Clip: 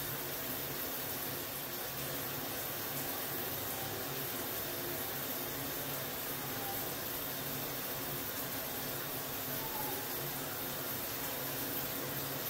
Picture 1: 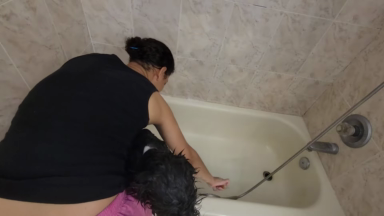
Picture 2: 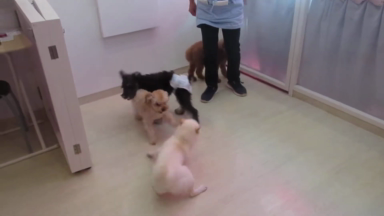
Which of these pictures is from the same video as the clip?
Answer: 1